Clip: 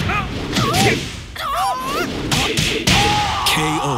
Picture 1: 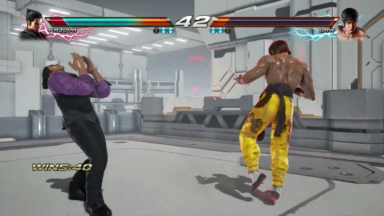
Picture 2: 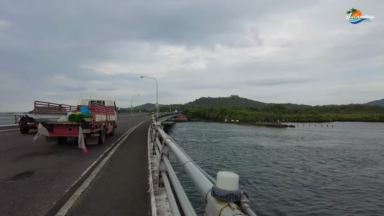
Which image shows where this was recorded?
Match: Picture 1